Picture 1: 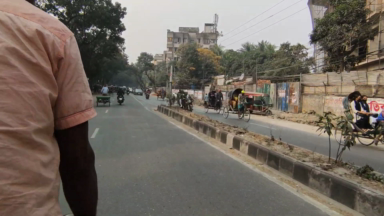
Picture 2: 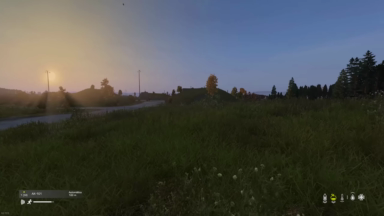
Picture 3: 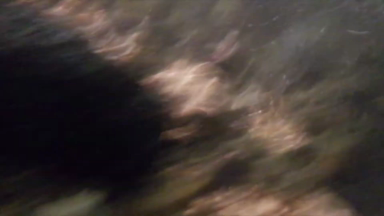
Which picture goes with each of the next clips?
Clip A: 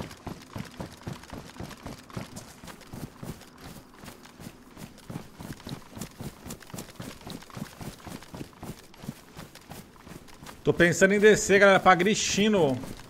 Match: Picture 2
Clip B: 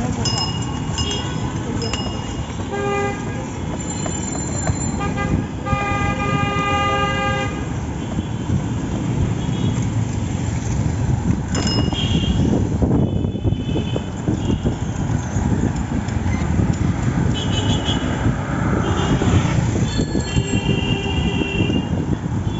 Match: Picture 1